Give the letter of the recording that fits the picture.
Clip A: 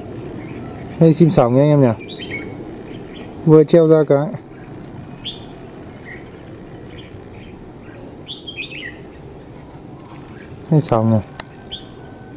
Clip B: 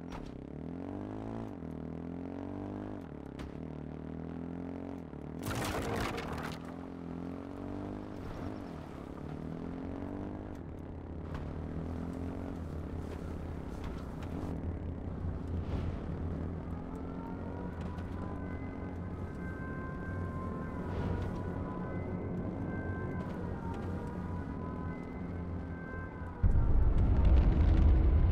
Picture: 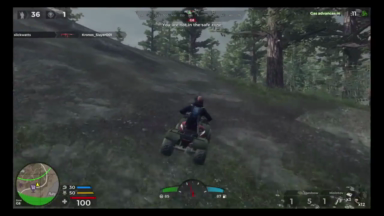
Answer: B